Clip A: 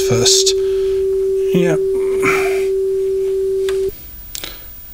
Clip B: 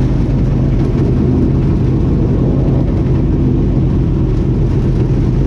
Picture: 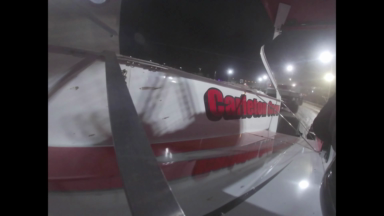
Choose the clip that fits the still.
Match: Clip B